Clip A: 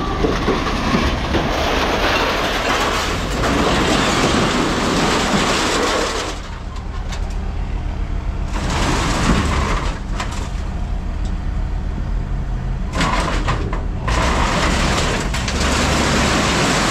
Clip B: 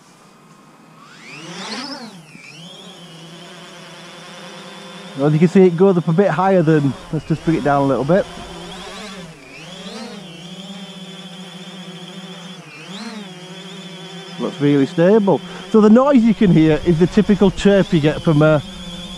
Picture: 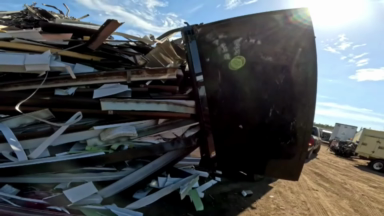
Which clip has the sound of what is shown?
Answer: A